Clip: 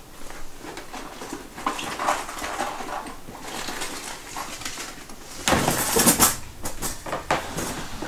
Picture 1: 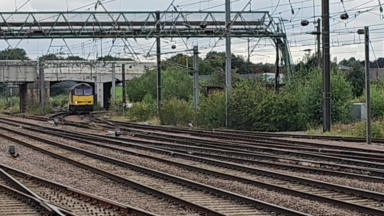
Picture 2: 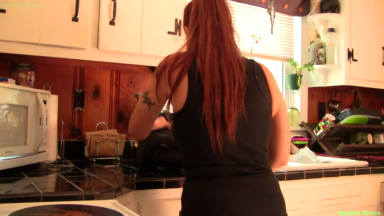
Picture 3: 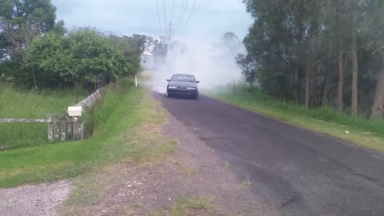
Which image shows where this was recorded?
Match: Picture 2